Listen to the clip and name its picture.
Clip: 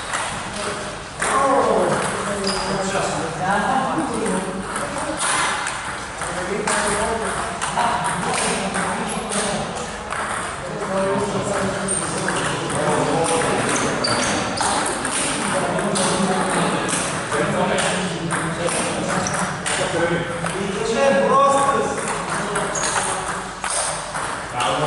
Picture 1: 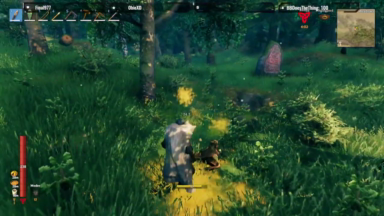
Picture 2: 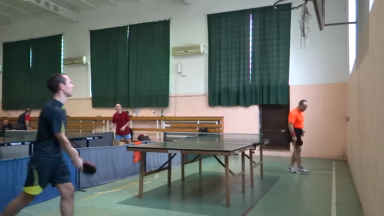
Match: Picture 2